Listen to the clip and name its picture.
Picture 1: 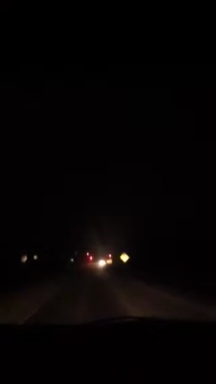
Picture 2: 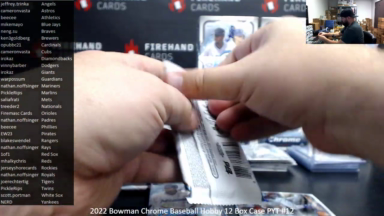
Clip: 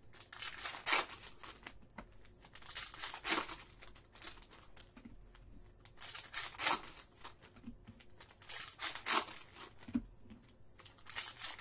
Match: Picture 2